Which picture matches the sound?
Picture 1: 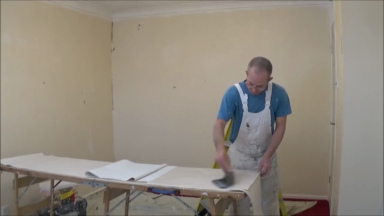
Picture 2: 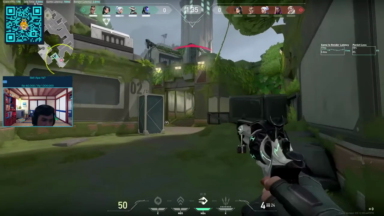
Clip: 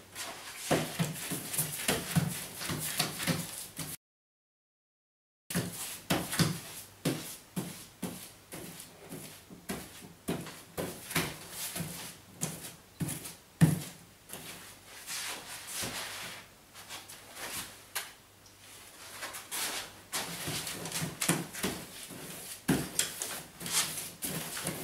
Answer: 1